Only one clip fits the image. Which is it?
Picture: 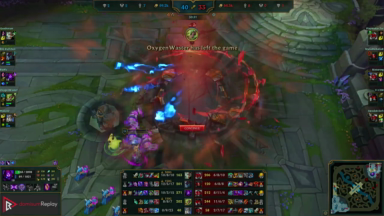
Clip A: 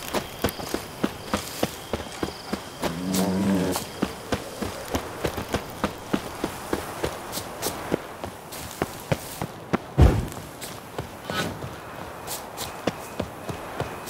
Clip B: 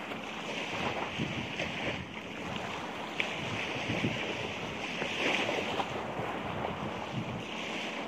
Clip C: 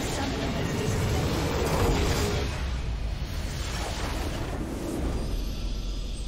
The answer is C